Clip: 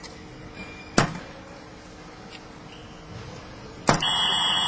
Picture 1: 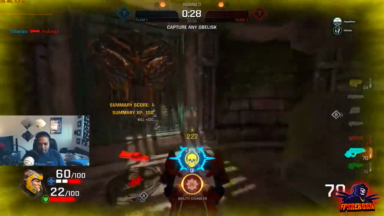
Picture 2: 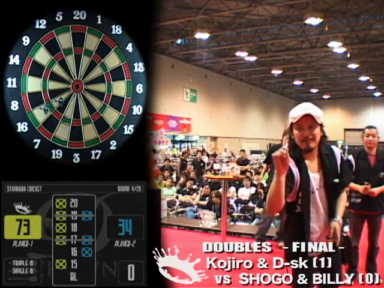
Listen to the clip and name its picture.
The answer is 2